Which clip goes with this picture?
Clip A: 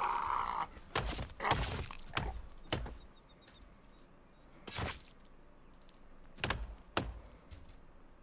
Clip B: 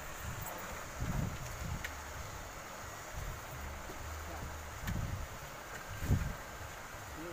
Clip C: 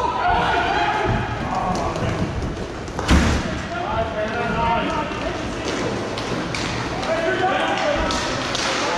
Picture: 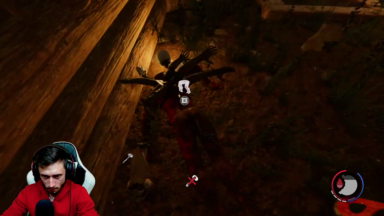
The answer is A